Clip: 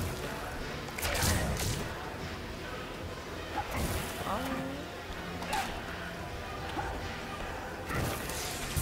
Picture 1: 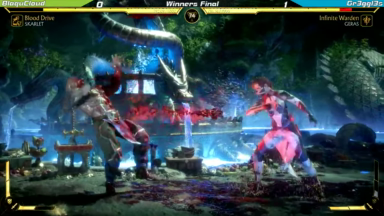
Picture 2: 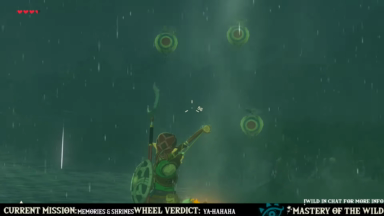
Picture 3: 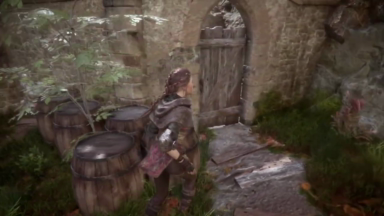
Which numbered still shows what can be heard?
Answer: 1